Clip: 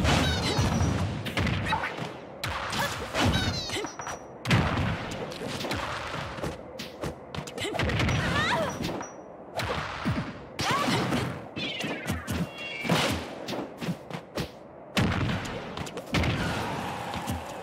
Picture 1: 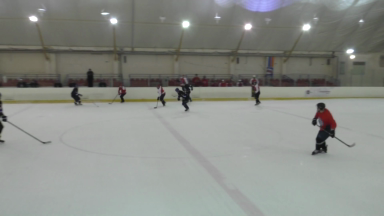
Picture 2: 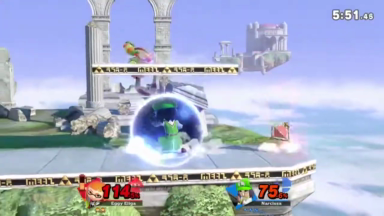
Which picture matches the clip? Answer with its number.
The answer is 2